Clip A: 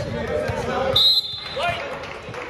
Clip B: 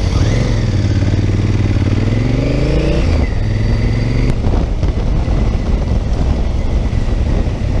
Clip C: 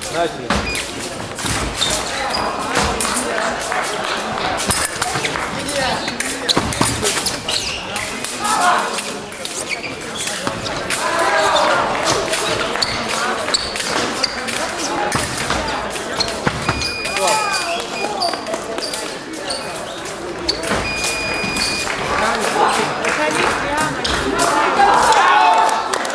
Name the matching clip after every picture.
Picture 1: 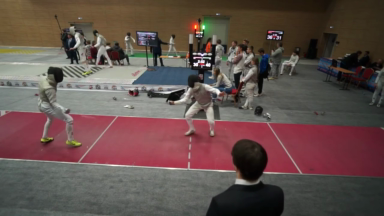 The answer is C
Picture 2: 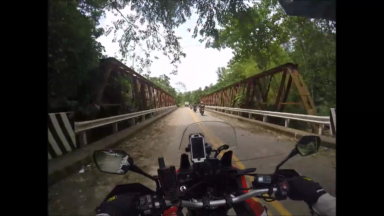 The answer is B